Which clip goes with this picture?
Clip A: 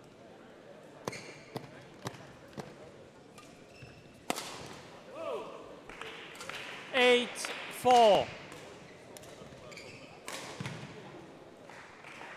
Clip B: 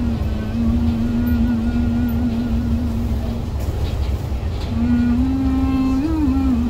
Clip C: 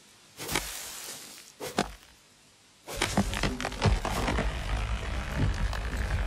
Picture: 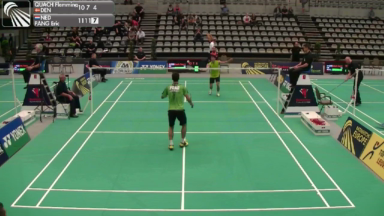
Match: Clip A